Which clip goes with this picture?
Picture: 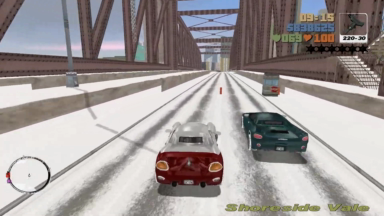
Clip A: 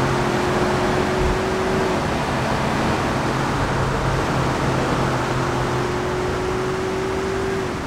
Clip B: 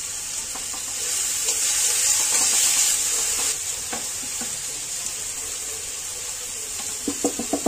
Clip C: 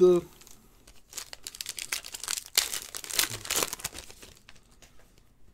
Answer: A